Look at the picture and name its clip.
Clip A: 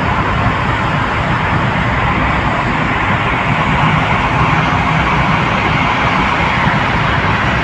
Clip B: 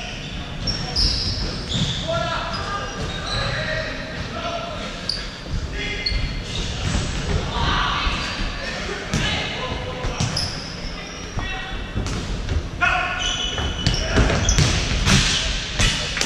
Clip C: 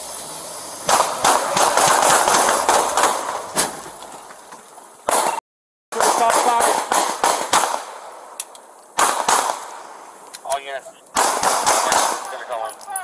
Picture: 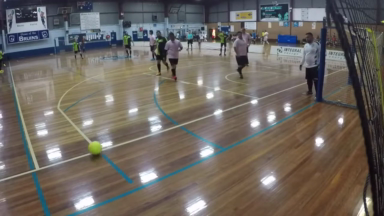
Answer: B